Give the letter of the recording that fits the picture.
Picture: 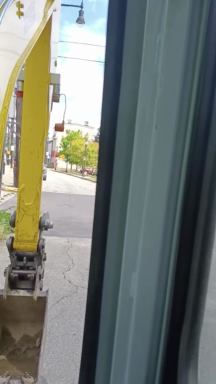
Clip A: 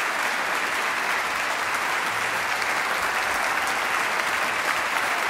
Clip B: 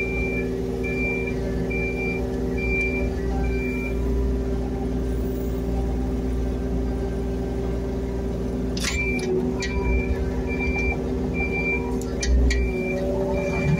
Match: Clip B